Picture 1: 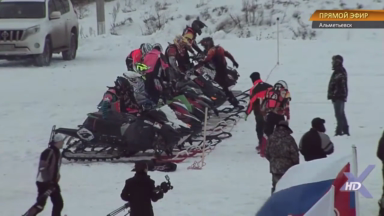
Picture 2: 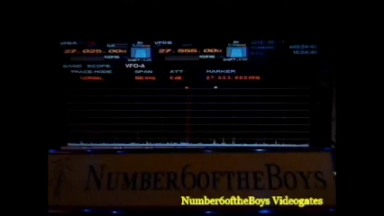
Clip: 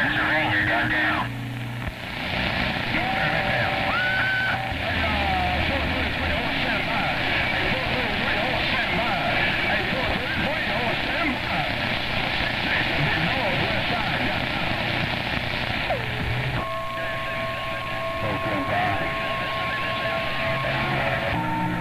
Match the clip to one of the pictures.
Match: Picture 2